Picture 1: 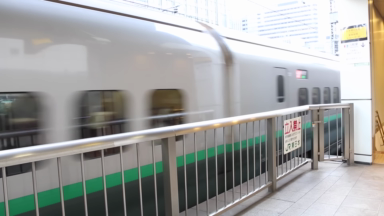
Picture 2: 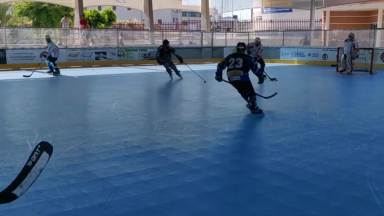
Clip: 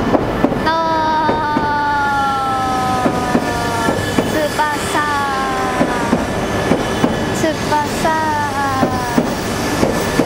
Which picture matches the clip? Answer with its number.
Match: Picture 1